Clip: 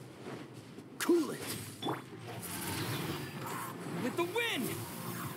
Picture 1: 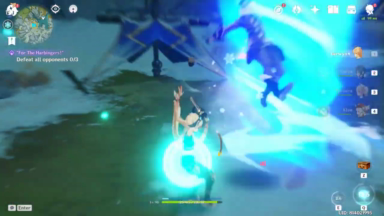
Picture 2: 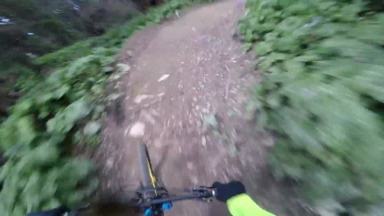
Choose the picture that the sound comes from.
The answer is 1